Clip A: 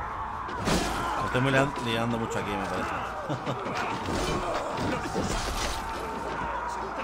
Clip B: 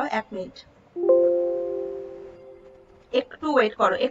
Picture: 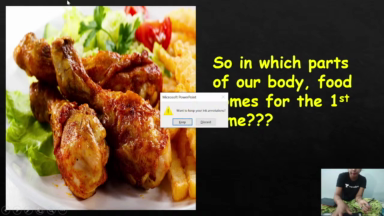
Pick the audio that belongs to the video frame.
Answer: B